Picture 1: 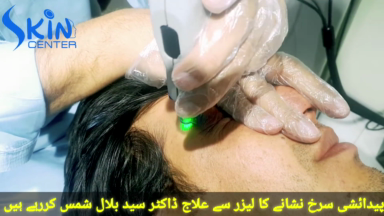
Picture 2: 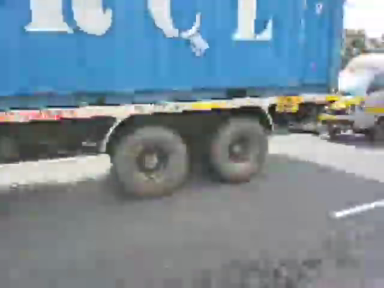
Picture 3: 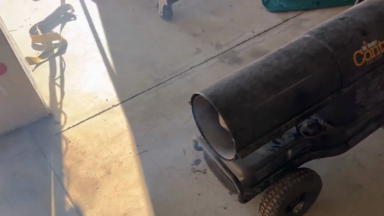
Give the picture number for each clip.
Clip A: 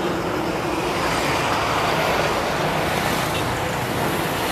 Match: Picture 2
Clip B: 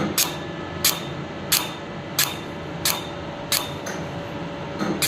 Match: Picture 1